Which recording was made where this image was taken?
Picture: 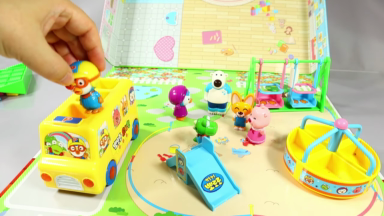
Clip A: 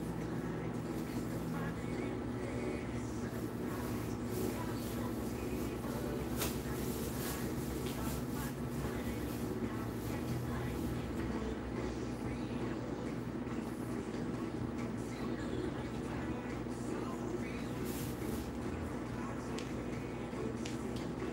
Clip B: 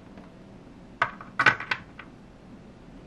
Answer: B